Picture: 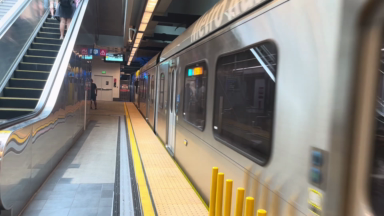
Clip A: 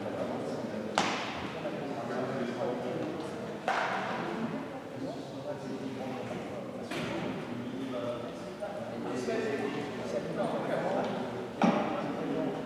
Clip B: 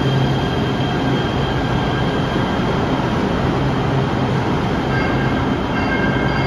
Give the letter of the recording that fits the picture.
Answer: B